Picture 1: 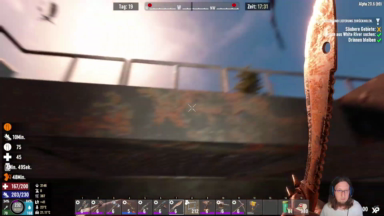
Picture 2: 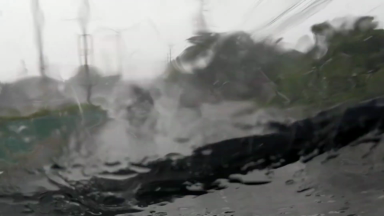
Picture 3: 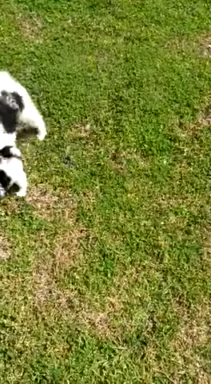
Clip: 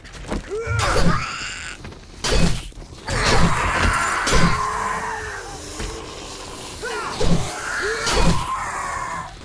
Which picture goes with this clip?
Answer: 1